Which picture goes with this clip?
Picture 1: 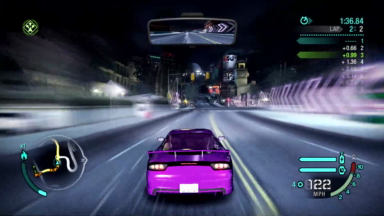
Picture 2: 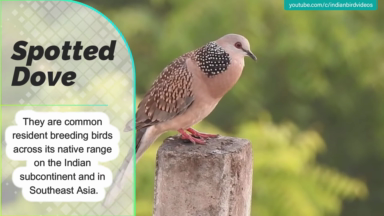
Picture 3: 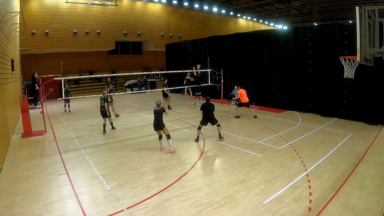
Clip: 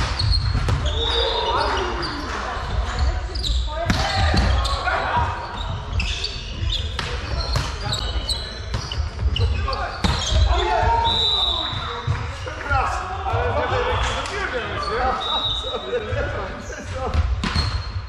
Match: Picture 3